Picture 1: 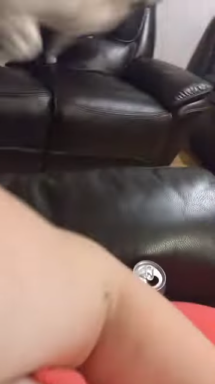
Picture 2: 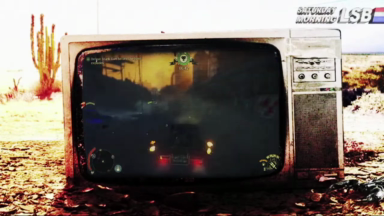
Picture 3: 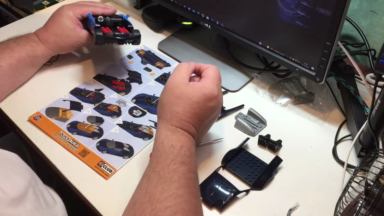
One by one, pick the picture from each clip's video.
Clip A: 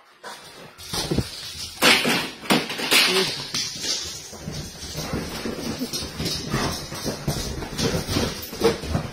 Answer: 1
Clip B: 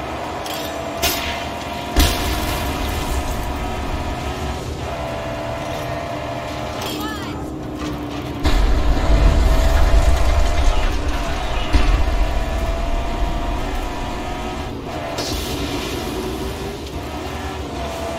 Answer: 2